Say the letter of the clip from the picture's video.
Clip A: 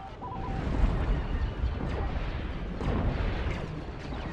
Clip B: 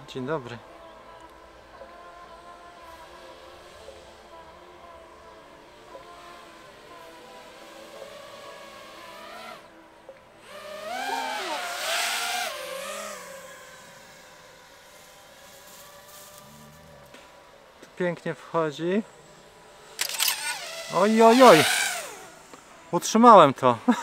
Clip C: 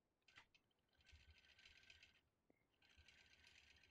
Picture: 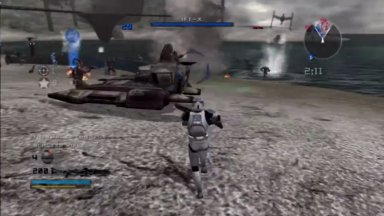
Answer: A